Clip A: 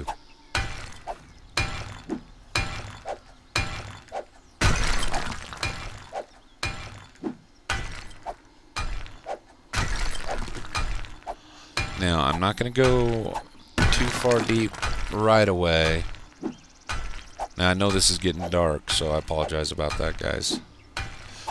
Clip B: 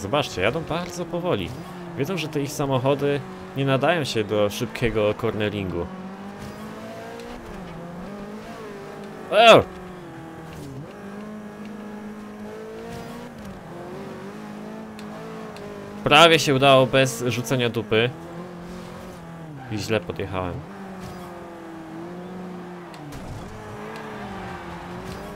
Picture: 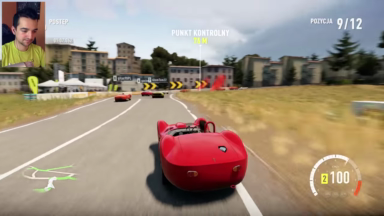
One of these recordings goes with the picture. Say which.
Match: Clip B